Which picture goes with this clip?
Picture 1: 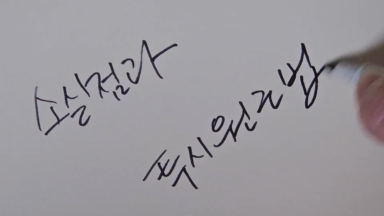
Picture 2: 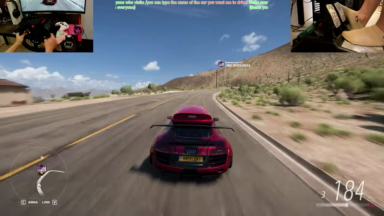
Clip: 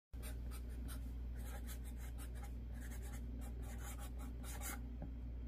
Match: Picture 1